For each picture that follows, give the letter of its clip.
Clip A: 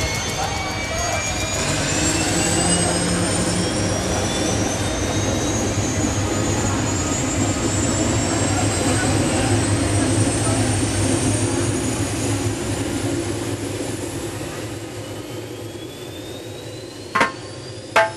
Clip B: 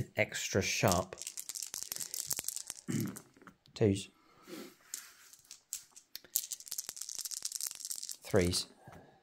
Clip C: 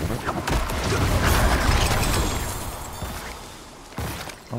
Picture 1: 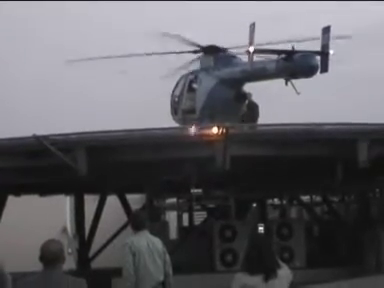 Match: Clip A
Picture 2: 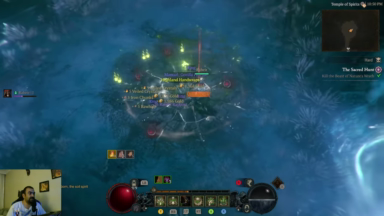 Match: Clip C